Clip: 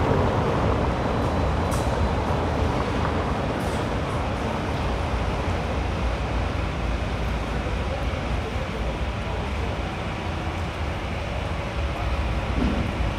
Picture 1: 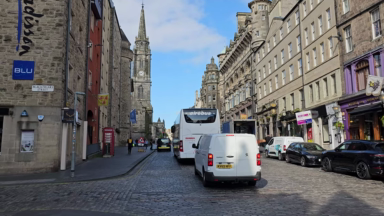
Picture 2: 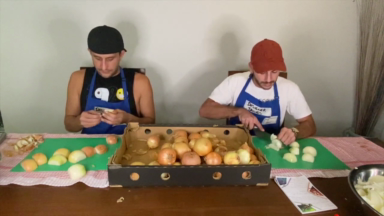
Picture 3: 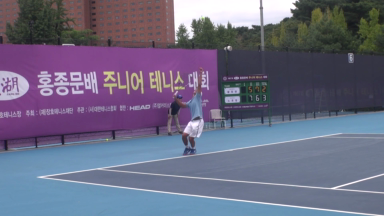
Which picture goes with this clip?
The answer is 1